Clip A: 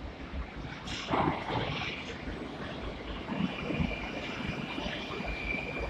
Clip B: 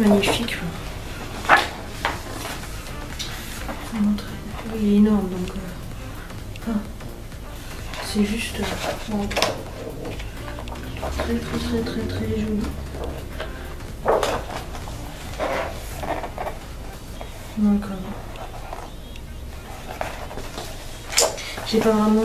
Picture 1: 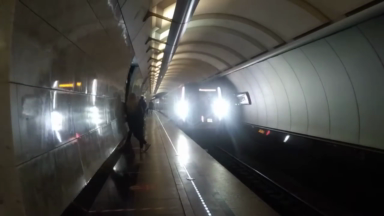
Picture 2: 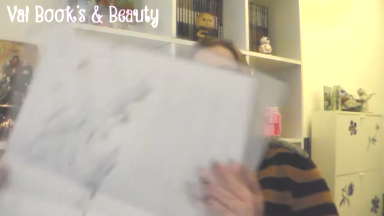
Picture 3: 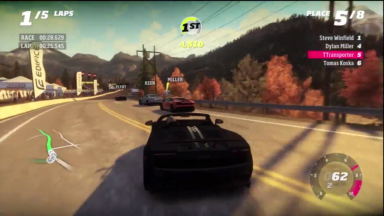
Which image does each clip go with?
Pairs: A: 1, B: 2